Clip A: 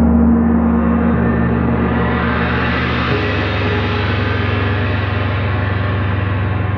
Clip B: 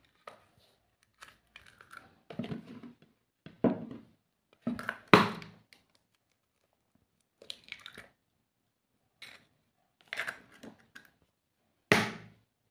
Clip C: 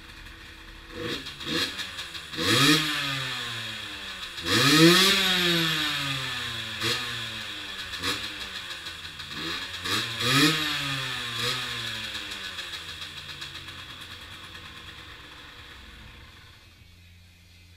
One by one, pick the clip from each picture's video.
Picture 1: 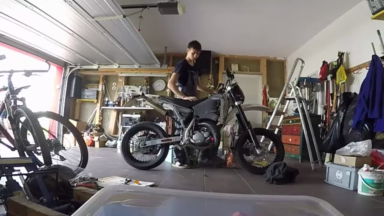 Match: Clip C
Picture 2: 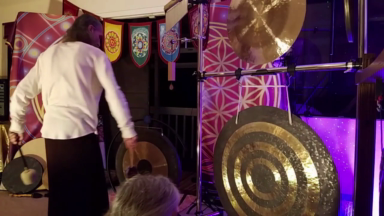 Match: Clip A